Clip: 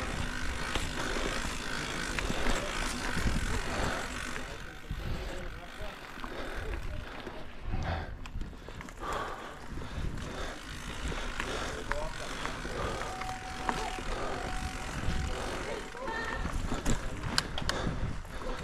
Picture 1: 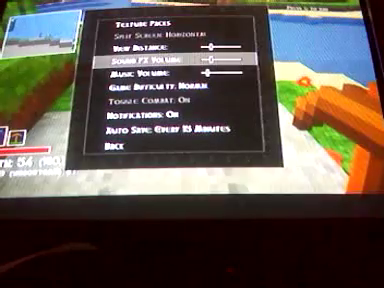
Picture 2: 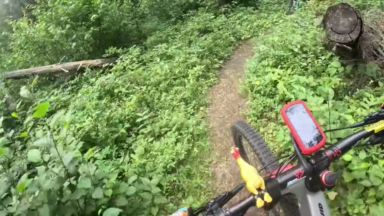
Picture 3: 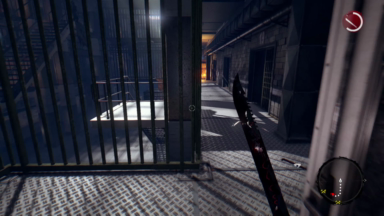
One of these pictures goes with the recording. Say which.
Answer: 2